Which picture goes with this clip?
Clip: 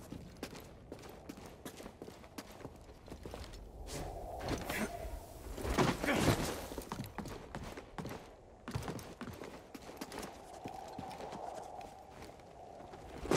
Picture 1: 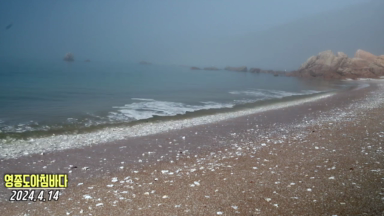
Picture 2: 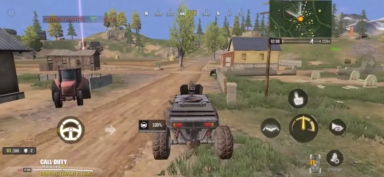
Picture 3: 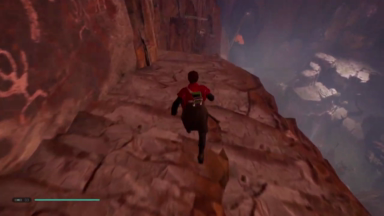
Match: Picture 3